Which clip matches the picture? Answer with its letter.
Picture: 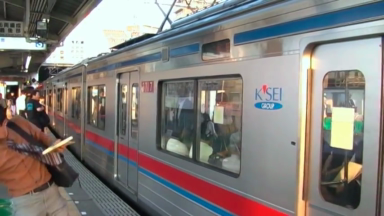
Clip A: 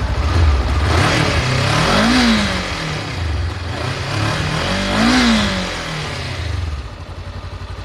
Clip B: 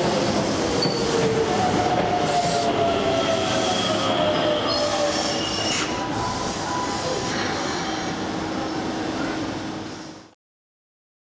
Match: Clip B